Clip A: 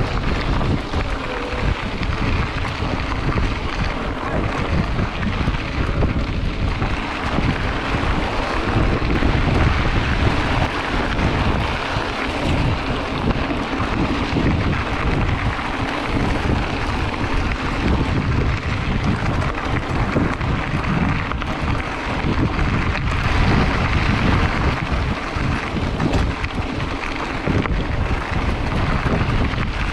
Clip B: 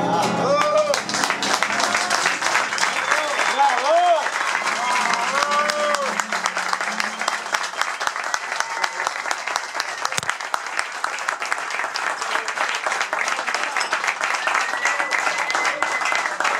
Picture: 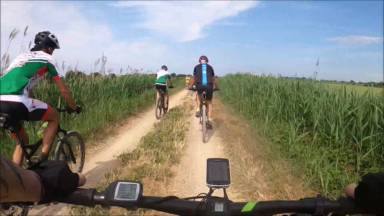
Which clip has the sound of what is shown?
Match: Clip A